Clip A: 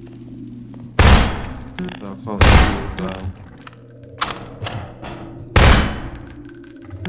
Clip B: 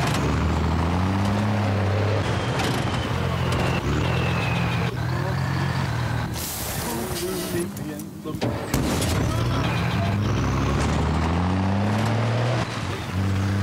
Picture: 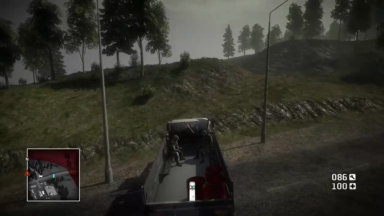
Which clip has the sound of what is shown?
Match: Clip B